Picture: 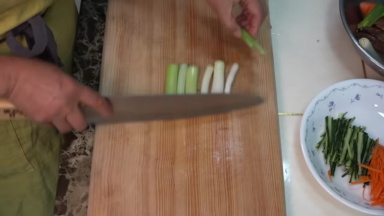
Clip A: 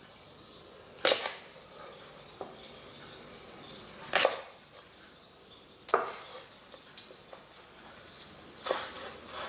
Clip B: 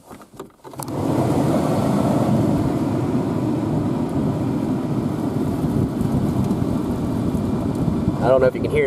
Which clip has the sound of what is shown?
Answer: A